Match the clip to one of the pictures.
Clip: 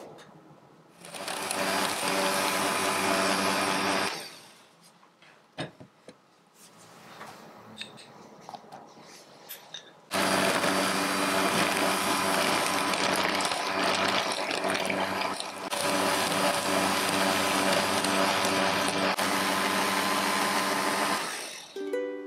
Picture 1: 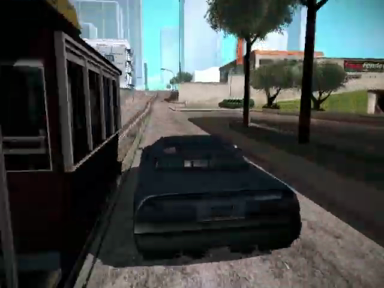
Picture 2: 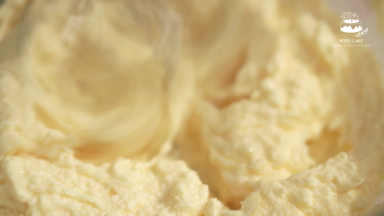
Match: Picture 2